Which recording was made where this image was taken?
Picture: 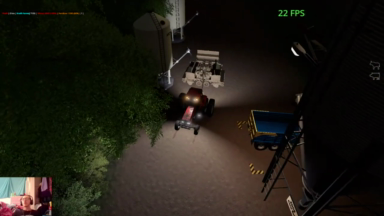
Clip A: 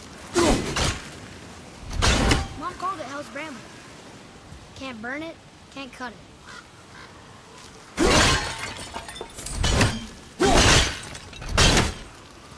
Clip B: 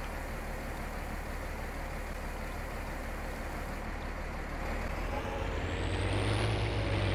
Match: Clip B